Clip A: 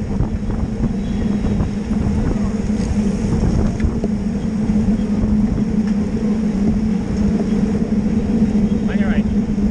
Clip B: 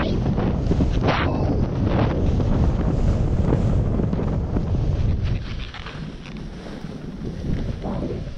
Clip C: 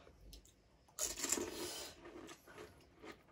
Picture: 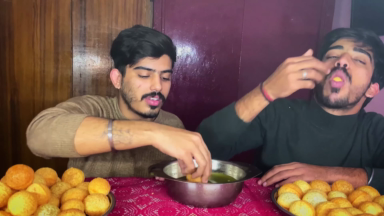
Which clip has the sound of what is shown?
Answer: C